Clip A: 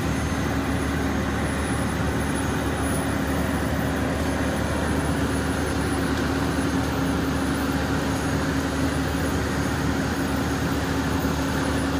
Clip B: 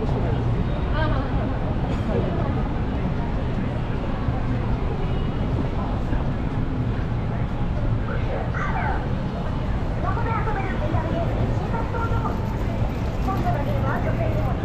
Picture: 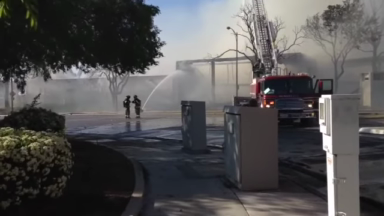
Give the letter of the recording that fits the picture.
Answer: A